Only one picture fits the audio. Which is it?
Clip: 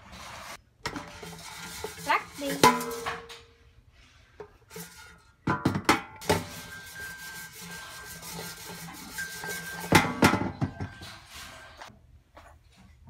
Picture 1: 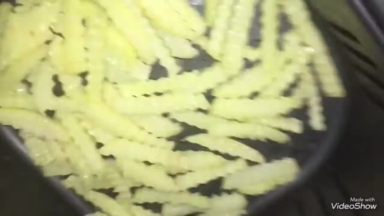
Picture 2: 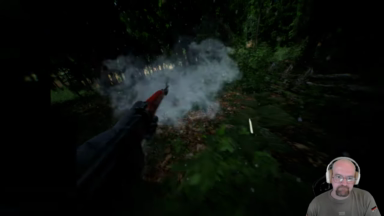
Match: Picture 1